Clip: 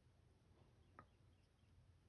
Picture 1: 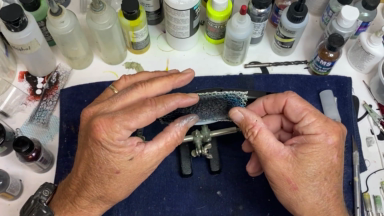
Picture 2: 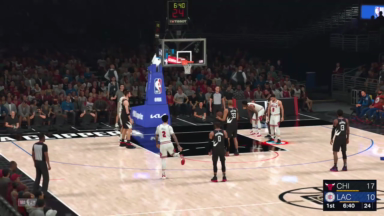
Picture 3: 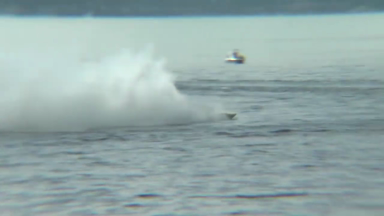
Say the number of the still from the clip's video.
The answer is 1